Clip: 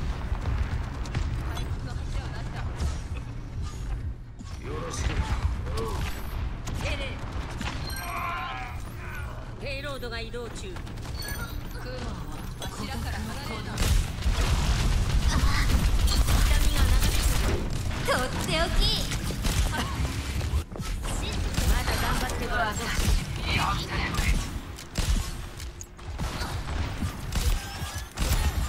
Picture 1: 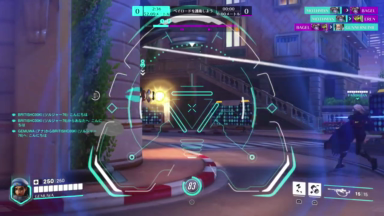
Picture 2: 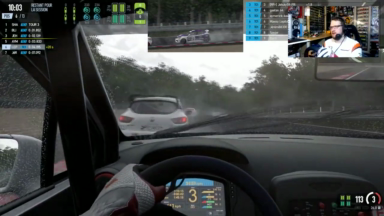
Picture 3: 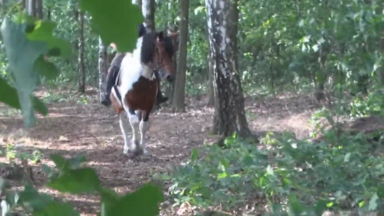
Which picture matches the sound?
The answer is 1